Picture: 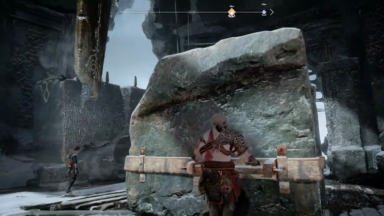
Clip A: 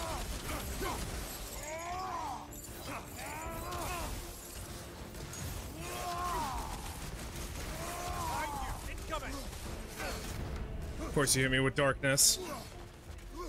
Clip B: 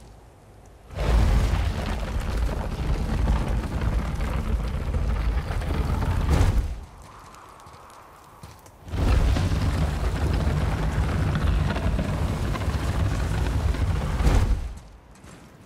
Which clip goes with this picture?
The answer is B